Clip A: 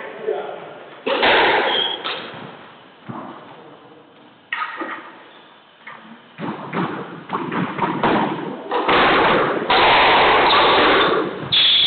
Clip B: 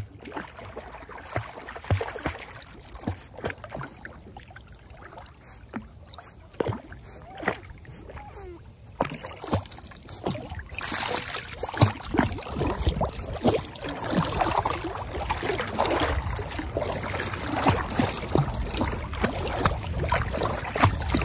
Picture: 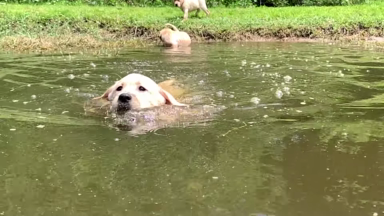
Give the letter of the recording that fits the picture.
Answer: B